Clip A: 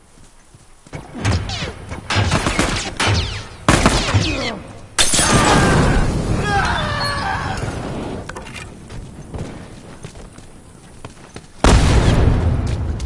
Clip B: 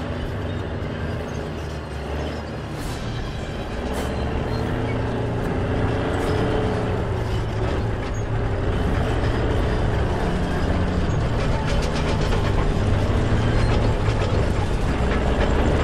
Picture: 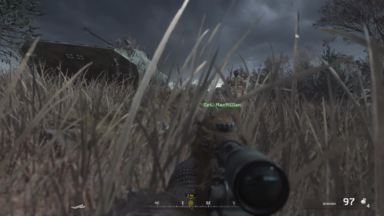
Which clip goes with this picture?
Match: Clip B